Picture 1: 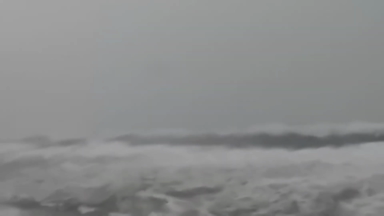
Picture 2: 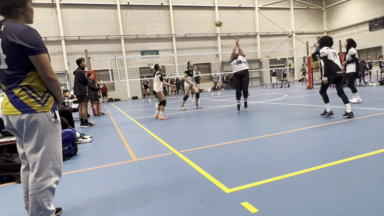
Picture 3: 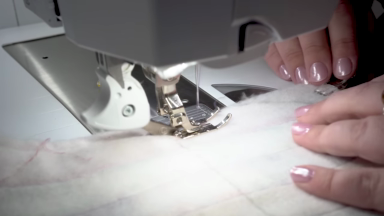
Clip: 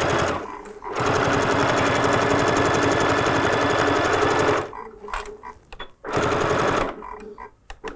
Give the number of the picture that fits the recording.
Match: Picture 3